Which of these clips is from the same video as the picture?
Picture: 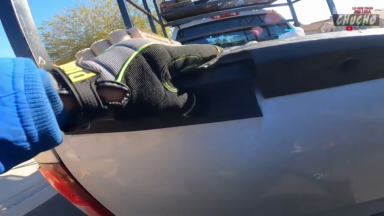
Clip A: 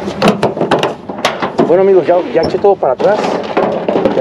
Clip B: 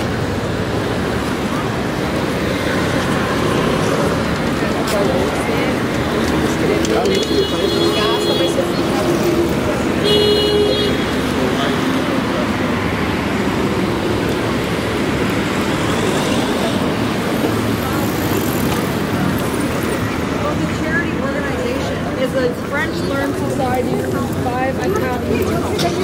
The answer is A